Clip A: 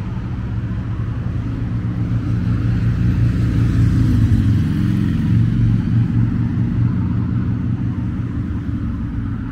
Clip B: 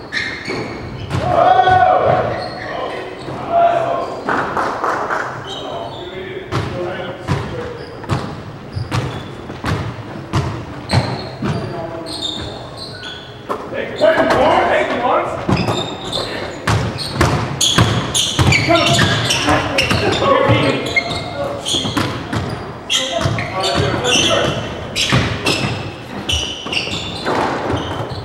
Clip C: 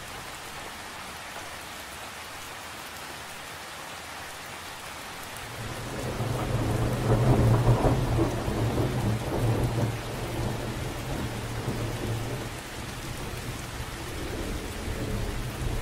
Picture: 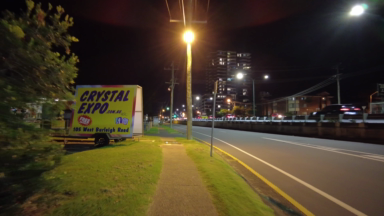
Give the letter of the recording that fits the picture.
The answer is A